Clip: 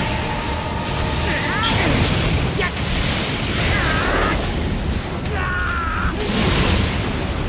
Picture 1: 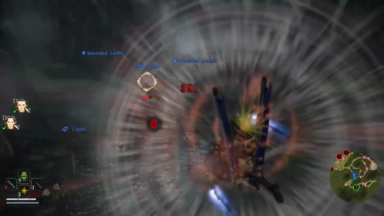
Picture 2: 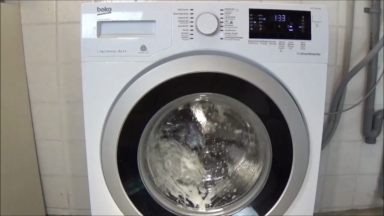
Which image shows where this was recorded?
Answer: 1